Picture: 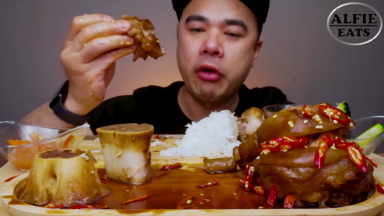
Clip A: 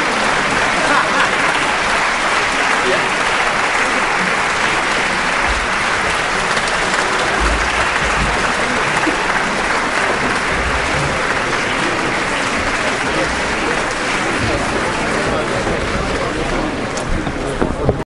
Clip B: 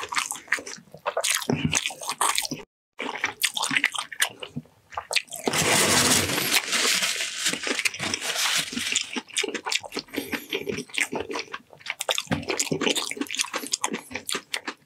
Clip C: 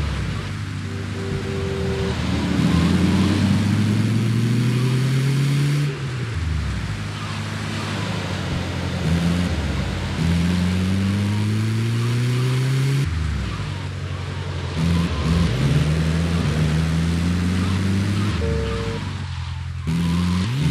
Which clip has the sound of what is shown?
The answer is B